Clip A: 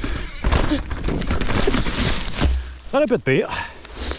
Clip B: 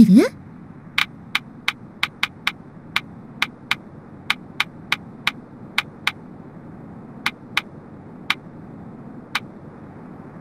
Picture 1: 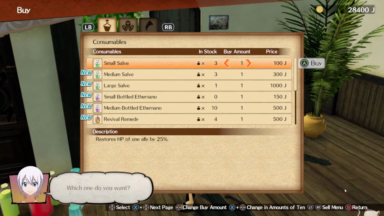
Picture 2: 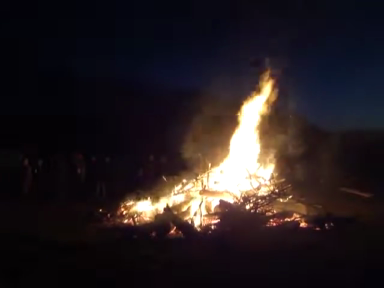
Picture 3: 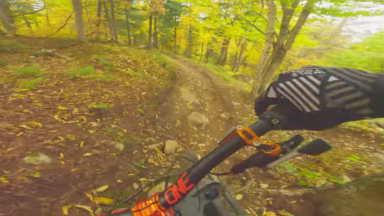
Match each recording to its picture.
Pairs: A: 3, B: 1